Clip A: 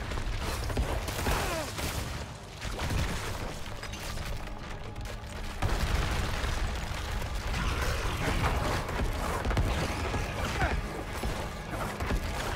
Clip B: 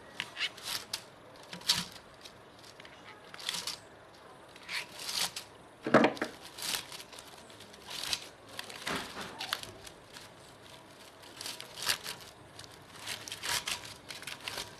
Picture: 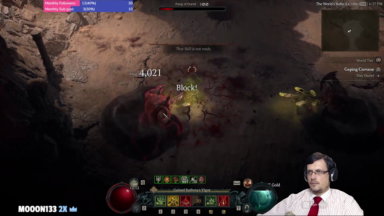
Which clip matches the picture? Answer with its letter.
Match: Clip A